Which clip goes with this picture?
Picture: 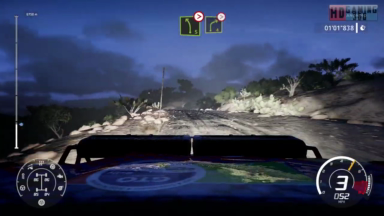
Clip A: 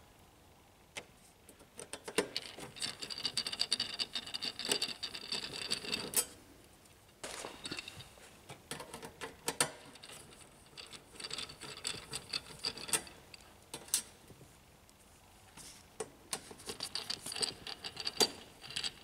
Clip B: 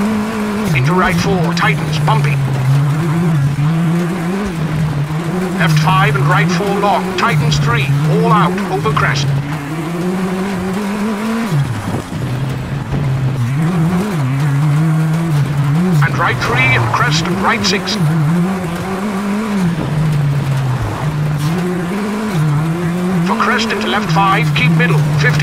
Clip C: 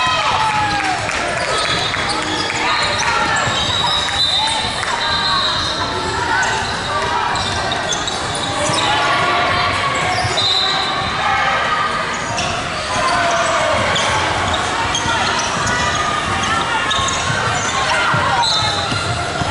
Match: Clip B